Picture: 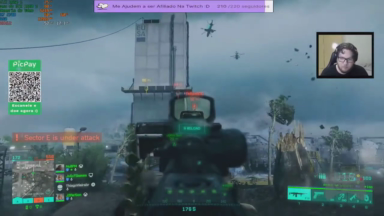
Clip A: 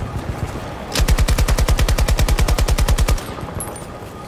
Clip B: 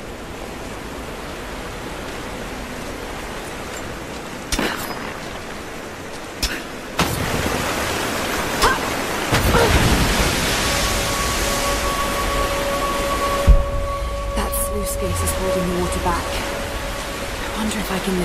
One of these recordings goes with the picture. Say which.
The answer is A